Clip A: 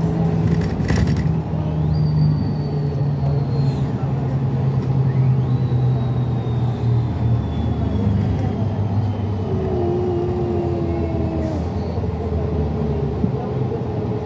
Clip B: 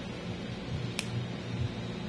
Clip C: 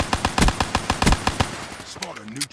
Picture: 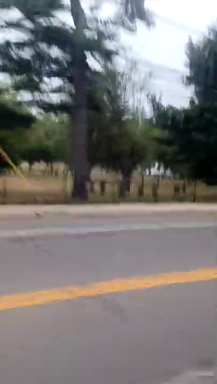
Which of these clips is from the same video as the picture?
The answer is A